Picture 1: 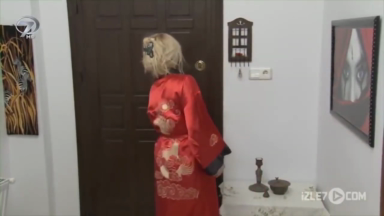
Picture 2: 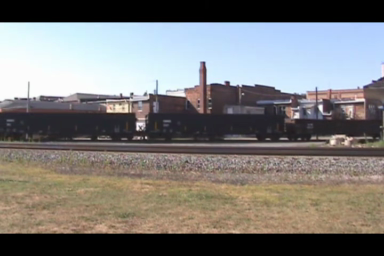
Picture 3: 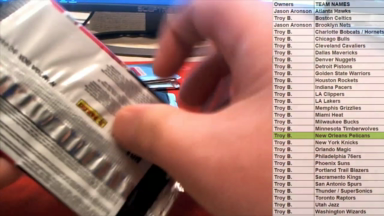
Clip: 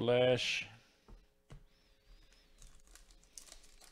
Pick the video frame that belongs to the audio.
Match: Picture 3